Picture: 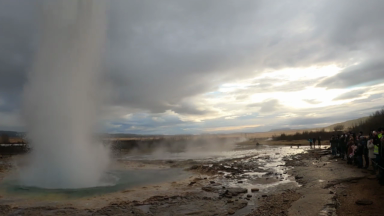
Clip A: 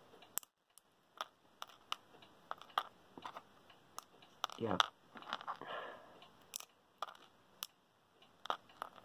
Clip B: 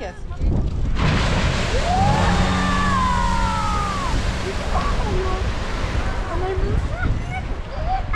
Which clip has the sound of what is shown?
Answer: B